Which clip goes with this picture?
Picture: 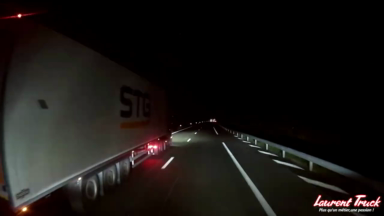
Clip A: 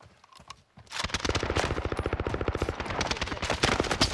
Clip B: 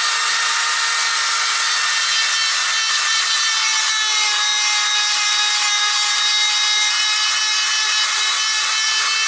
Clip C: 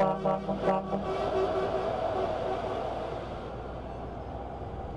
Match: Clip C